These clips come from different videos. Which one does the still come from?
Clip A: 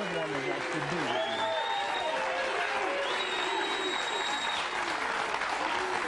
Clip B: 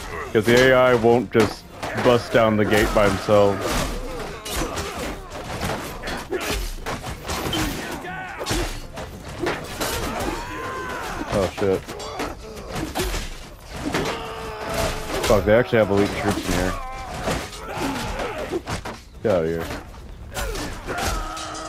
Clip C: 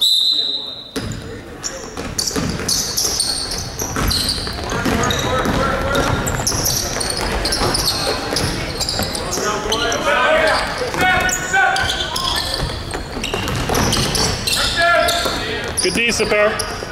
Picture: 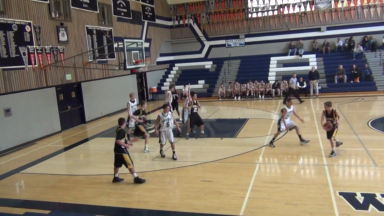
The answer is C